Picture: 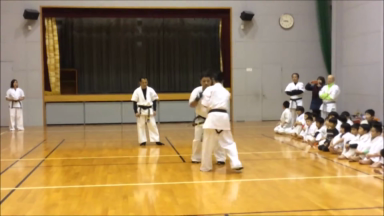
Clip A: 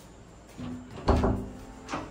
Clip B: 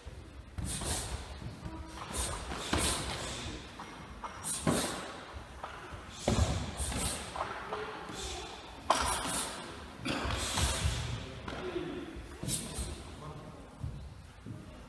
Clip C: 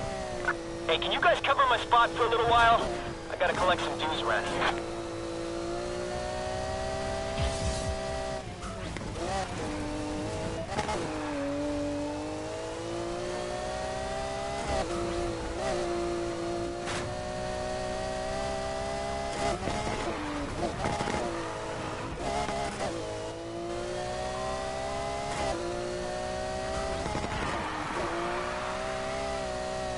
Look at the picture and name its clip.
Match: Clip B